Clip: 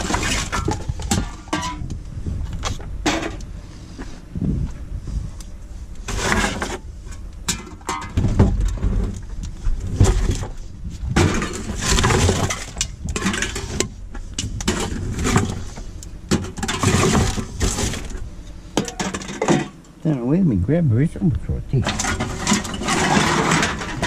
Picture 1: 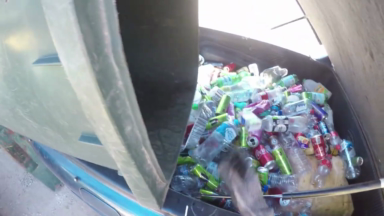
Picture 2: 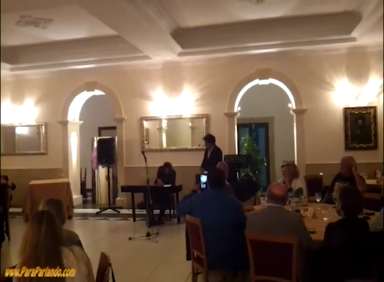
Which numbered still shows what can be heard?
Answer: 1